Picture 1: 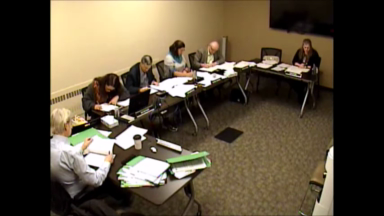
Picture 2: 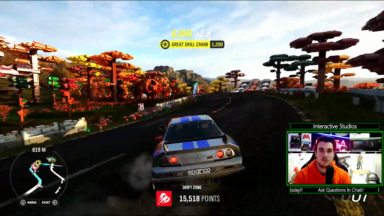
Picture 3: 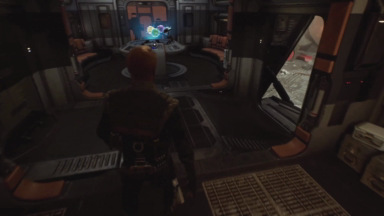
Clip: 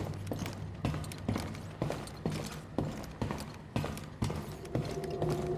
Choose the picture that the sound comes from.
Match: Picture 3